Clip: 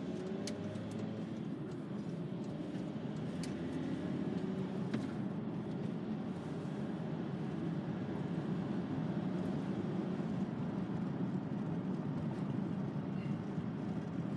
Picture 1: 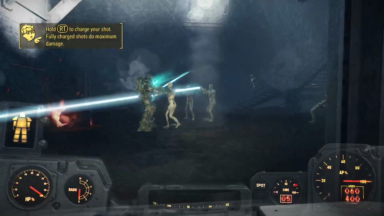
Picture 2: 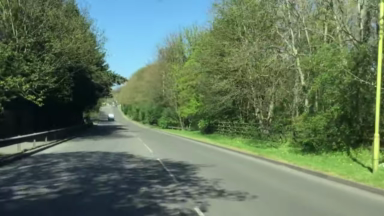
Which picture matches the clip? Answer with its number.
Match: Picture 2